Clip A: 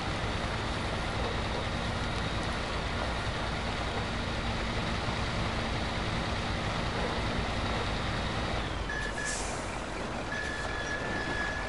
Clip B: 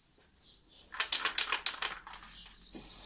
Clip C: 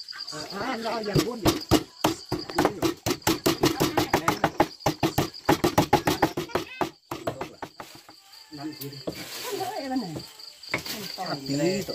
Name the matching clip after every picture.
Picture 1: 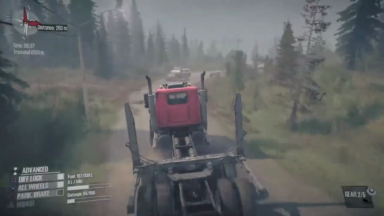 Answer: A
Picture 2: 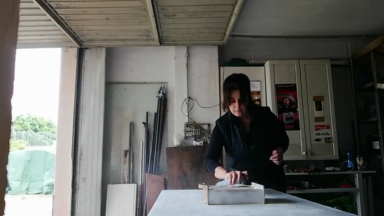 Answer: B